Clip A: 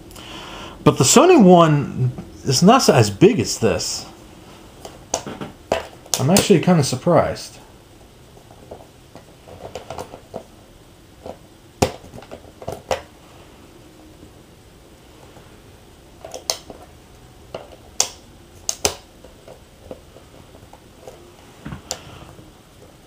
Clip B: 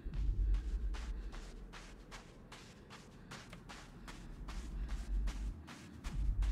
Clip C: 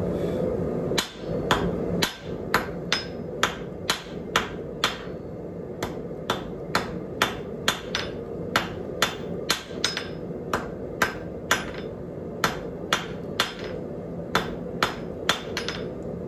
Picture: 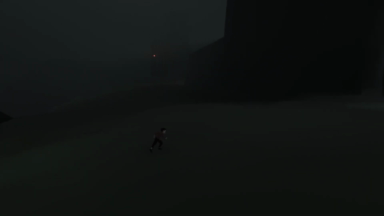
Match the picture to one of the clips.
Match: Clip B